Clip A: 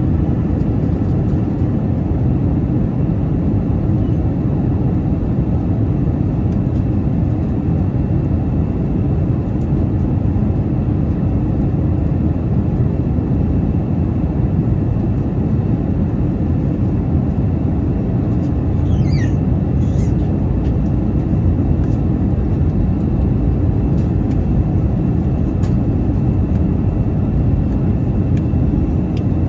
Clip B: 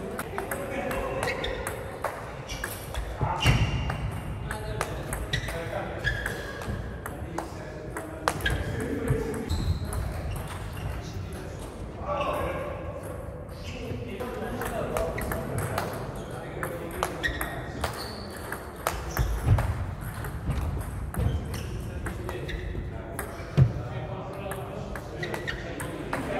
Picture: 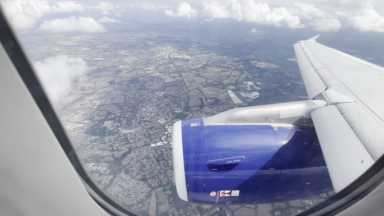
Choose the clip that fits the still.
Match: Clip A